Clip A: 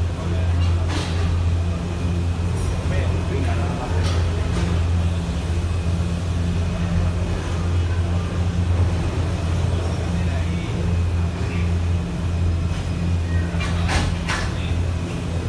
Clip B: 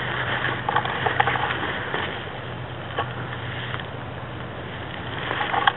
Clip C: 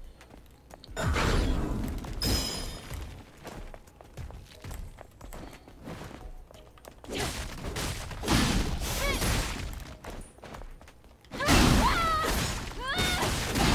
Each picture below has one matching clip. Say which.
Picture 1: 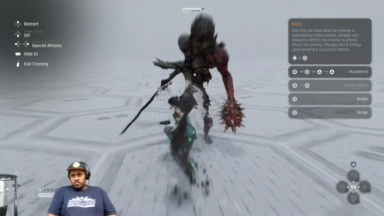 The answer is C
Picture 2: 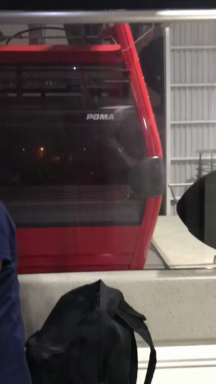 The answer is A